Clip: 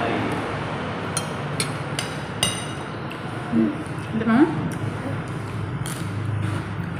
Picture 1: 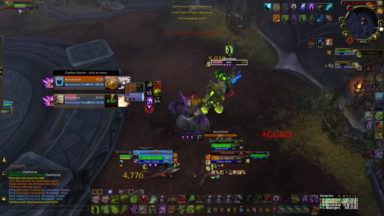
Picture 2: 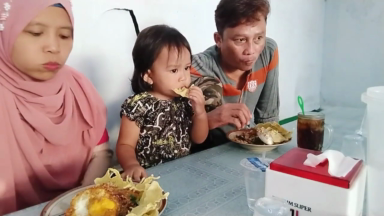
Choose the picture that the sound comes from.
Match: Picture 2